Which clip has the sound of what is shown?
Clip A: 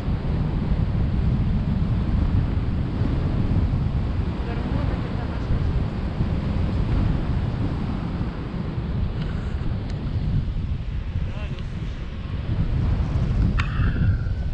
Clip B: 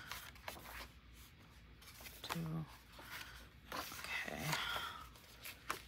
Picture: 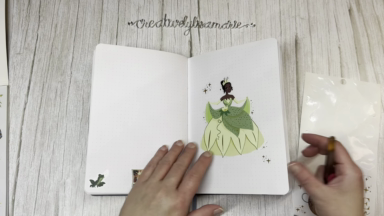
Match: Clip B